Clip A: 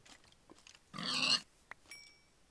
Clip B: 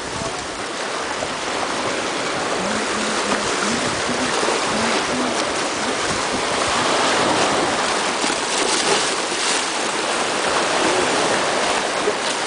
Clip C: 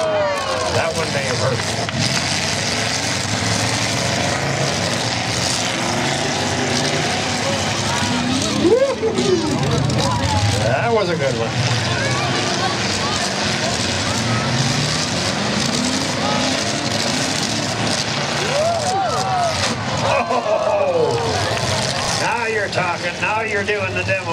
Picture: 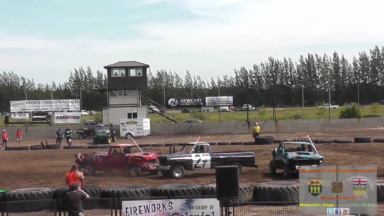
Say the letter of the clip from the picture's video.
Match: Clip C